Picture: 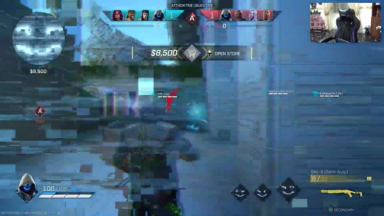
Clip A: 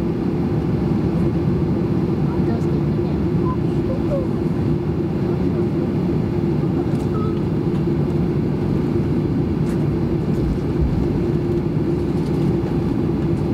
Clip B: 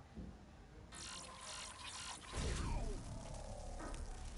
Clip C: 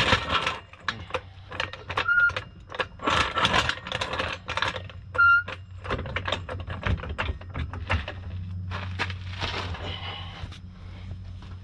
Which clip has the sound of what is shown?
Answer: B